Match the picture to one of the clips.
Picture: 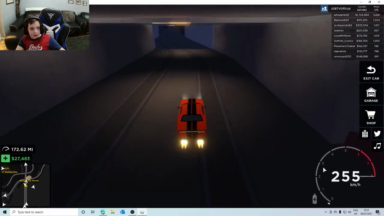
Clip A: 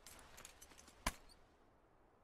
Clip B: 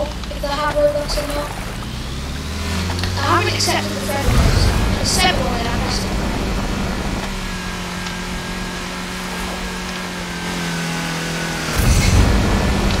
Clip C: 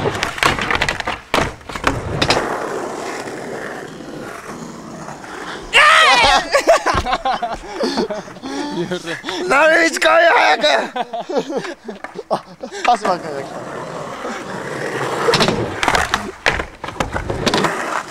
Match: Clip B